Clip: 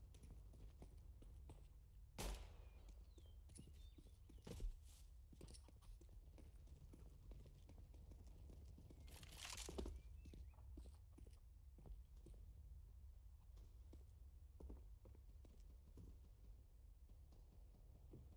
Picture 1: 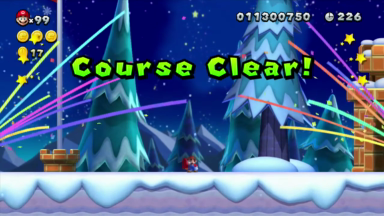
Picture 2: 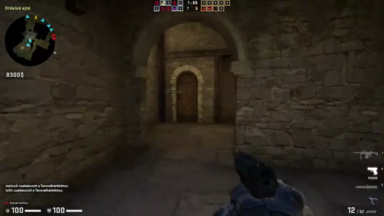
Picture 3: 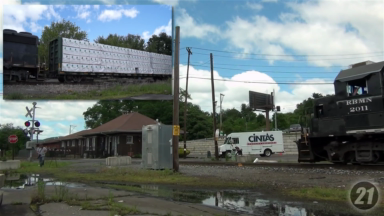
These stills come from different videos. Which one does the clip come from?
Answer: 2